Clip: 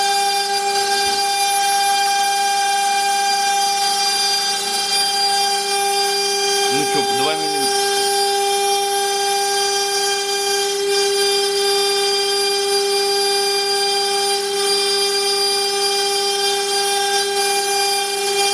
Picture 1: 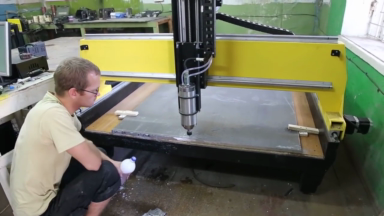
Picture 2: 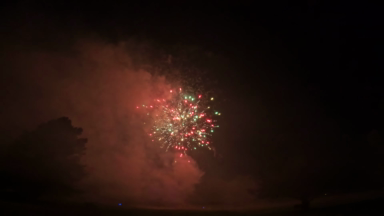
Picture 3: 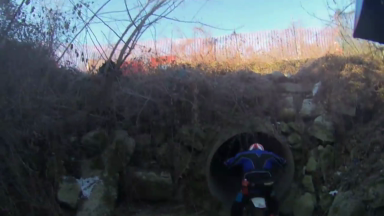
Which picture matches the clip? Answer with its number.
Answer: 1